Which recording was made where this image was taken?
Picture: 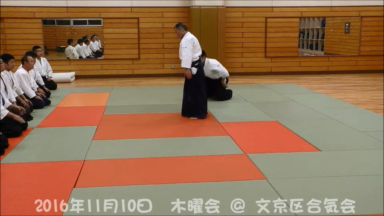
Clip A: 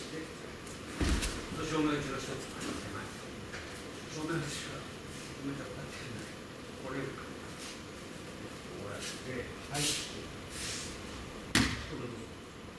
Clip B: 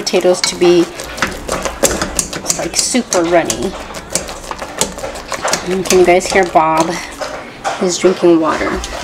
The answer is A